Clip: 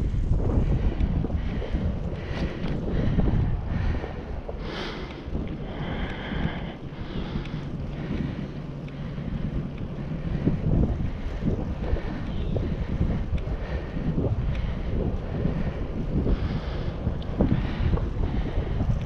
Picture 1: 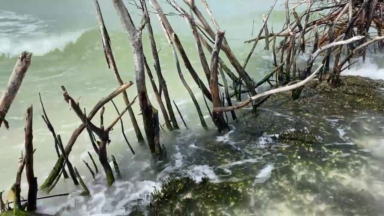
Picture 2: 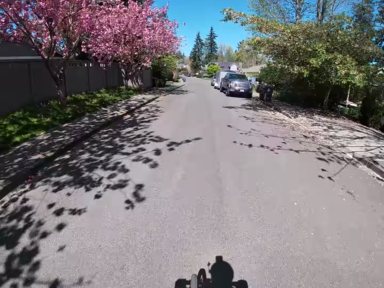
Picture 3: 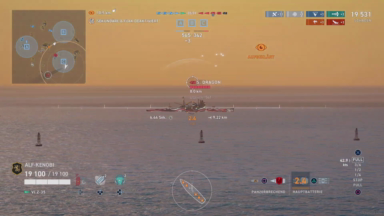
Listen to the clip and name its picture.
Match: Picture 2